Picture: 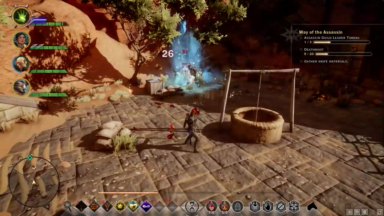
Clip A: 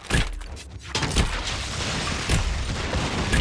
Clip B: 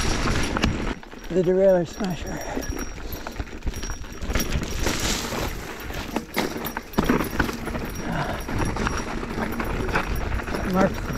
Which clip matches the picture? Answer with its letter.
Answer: A